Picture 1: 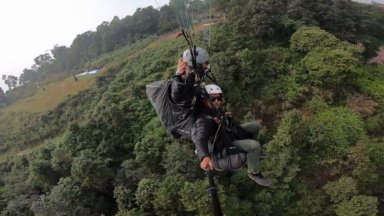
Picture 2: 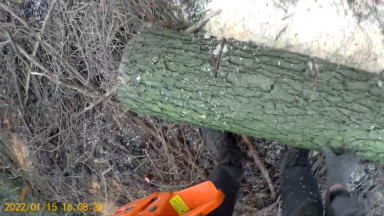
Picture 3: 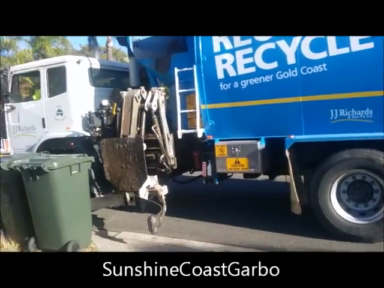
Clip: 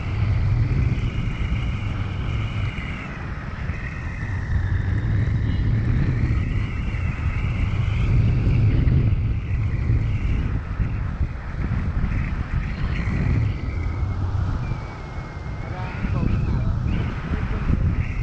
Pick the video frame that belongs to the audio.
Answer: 1